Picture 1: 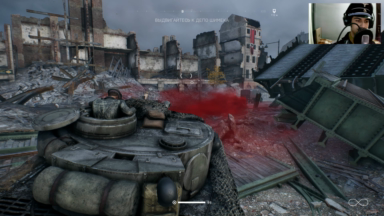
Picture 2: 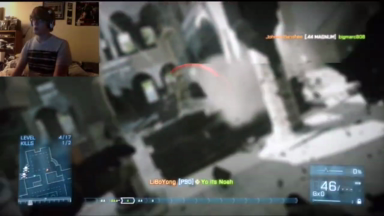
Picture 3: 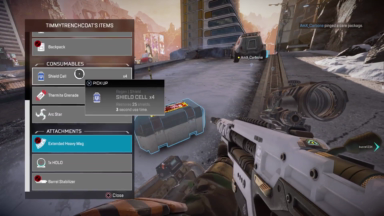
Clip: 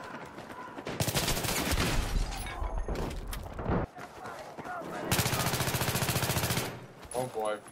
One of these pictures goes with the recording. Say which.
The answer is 2